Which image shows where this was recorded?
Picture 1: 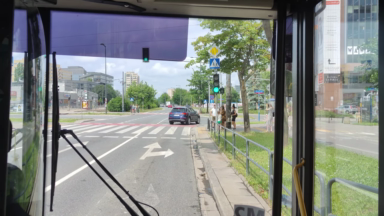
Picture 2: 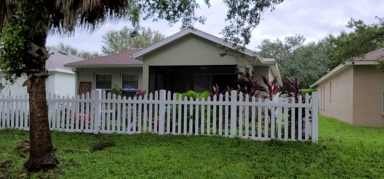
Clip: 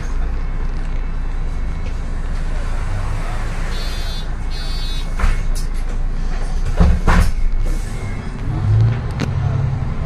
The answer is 1